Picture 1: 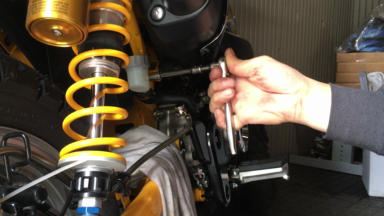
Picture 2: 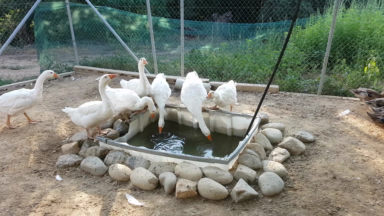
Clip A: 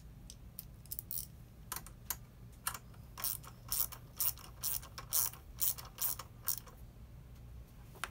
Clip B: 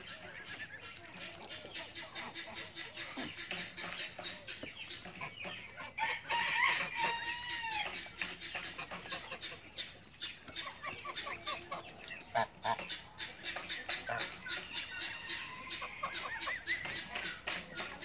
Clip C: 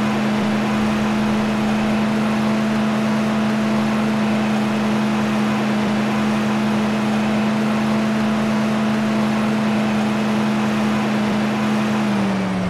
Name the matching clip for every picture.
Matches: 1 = A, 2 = B